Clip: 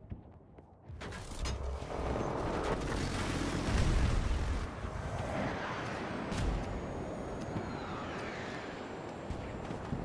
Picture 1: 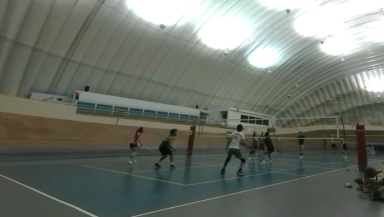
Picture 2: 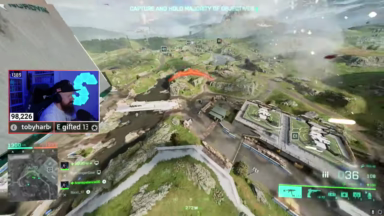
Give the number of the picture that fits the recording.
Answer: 2